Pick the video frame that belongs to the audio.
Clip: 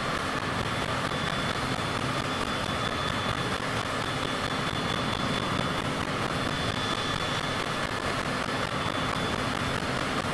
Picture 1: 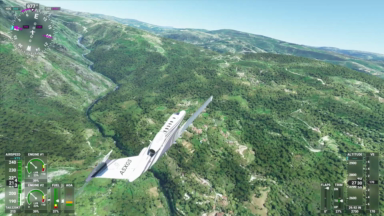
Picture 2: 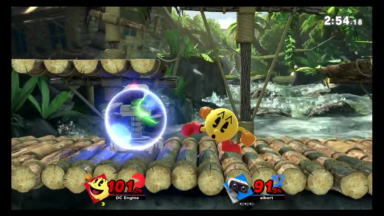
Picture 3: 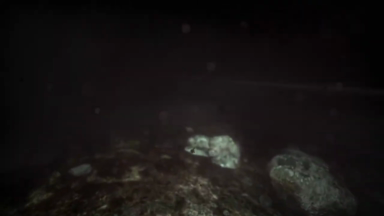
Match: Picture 1